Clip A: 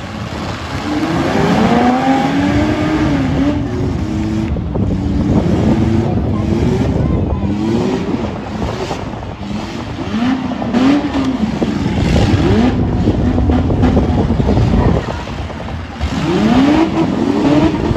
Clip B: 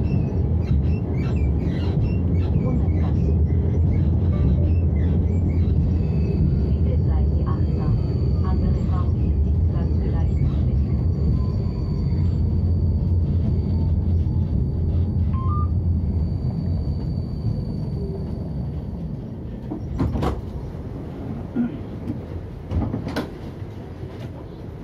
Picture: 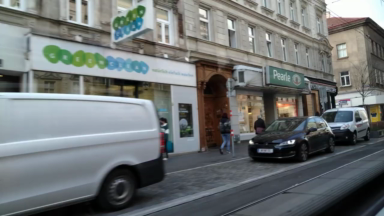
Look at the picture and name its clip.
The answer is B